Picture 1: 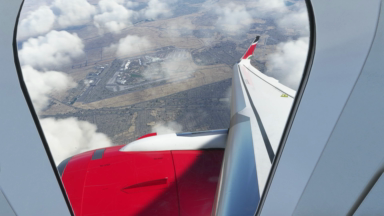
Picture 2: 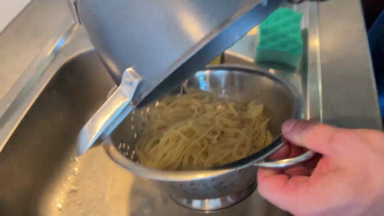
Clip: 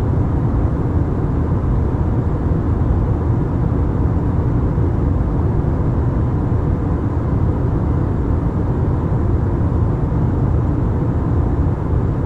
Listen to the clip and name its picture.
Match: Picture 1